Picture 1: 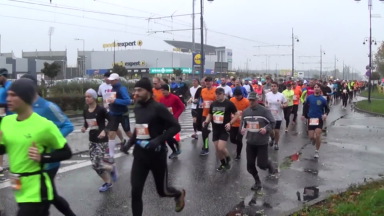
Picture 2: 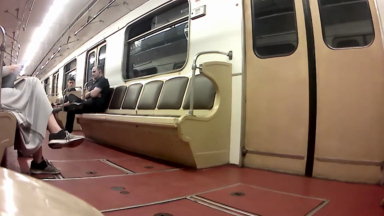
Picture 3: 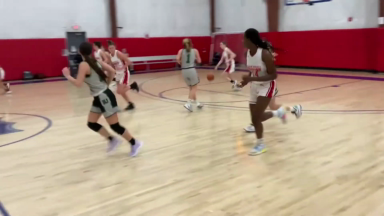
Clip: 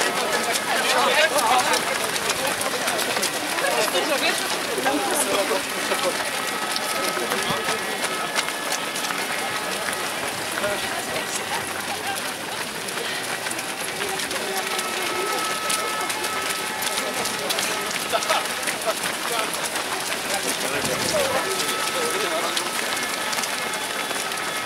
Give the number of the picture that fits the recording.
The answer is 1